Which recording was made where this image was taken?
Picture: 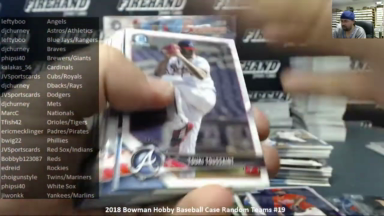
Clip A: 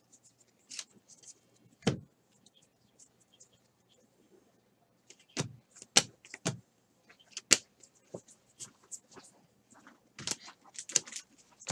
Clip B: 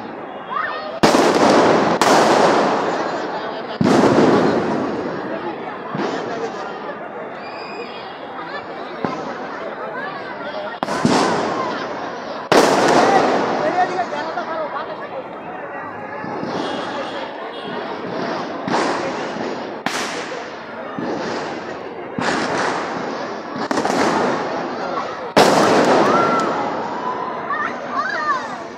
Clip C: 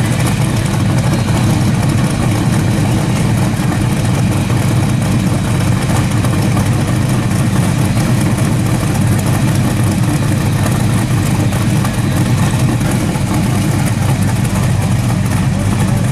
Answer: A